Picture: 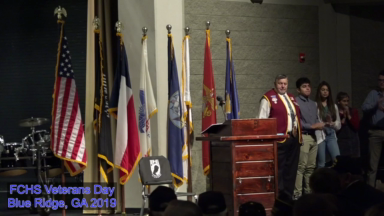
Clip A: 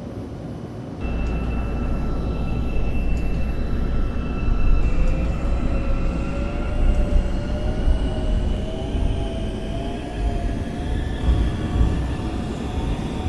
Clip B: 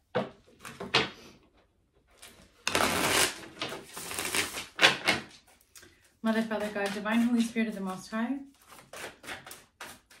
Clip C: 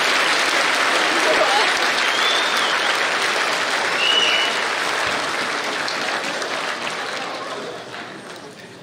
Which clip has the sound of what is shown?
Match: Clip C